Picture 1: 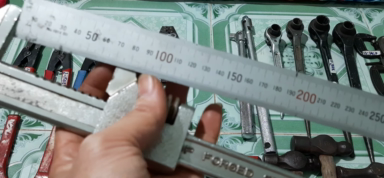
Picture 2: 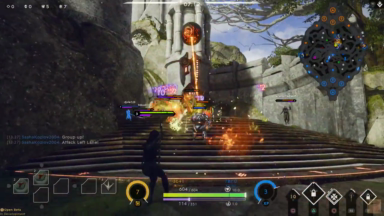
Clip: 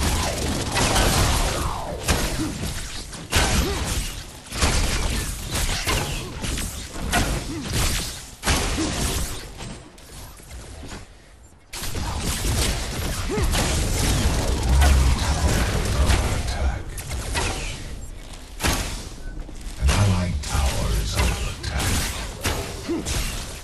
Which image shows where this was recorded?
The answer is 2